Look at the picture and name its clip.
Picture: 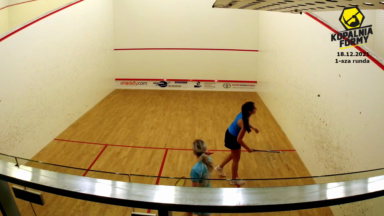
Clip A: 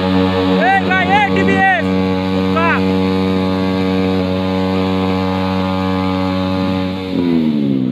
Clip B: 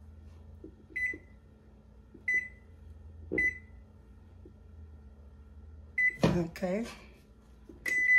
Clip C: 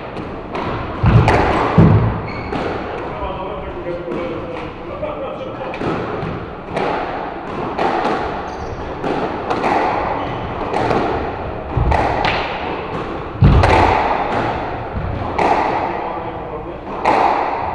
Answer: C